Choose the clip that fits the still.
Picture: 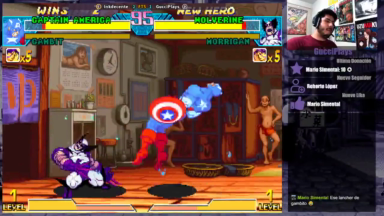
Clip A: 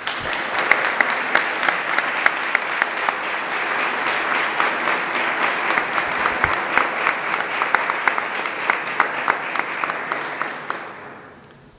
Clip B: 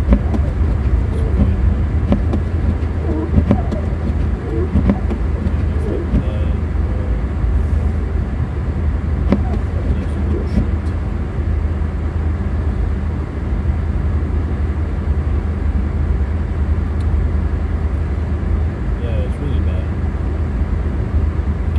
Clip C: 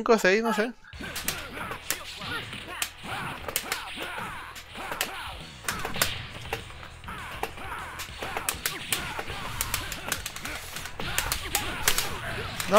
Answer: C